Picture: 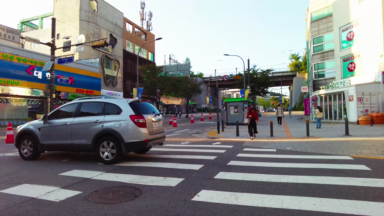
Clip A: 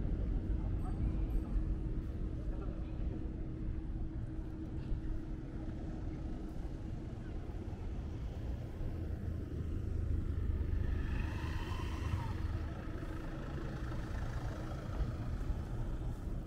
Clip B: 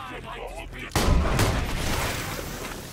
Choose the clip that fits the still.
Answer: A